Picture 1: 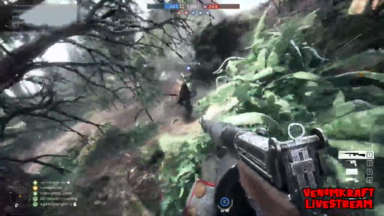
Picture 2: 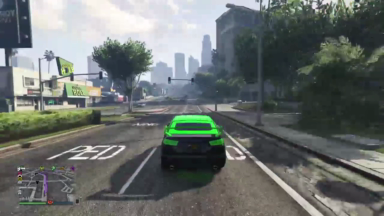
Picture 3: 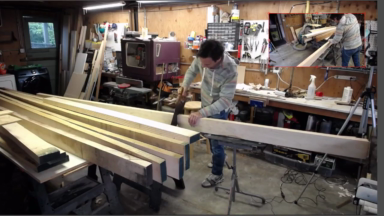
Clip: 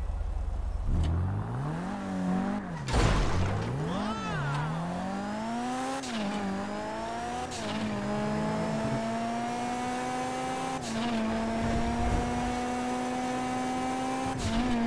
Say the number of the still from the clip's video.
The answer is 2